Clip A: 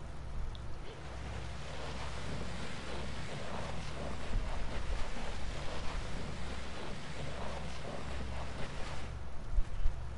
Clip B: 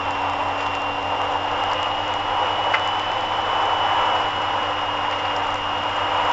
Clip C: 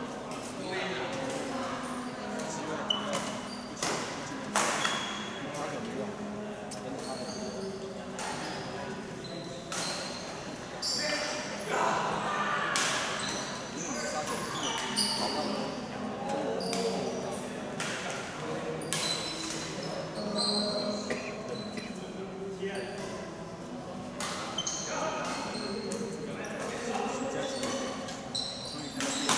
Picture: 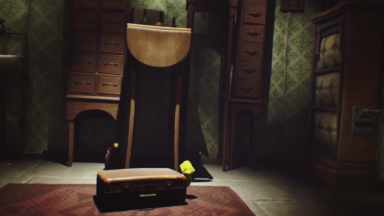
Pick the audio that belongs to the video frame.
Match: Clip A